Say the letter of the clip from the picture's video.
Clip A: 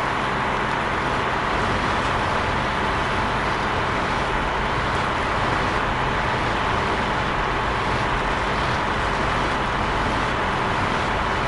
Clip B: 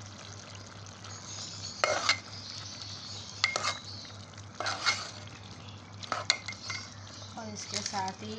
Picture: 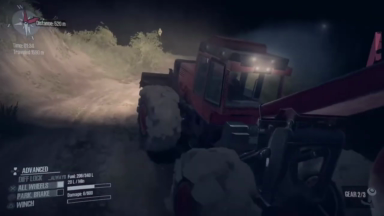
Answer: A